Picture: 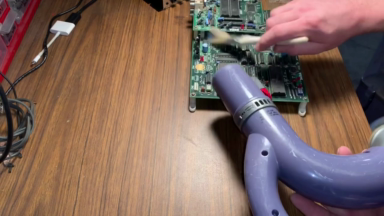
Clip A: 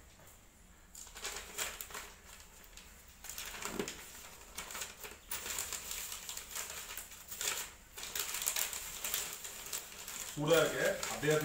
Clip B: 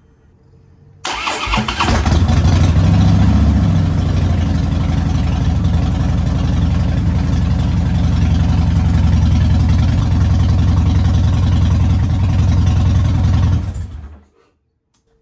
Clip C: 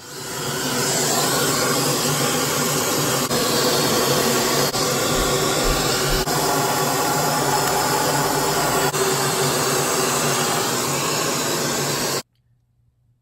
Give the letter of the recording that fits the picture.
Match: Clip C